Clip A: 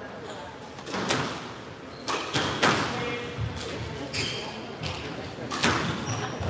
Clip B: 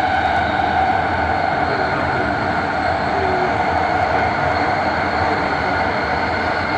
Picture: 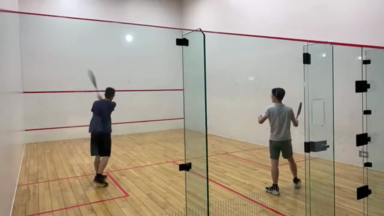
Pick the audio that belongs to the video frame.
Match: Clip A